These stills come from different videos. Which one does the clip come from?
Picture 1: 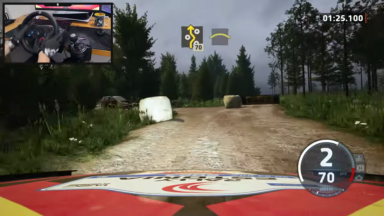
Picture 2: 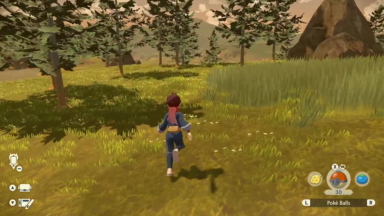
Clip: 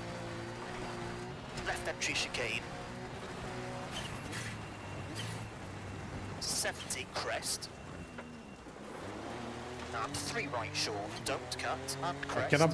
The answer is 1